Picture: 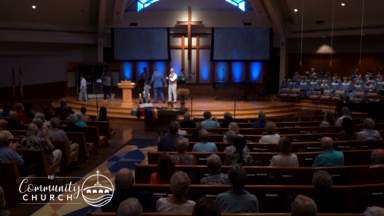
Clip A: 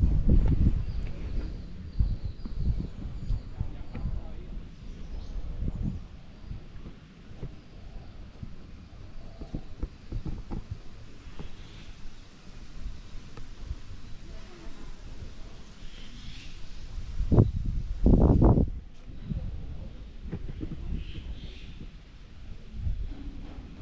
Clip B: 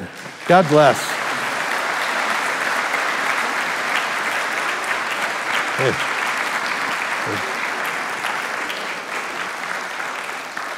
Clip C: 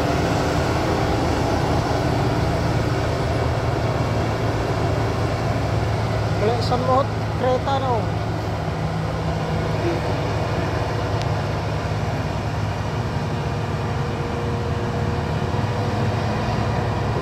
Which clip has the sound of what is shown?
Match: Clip B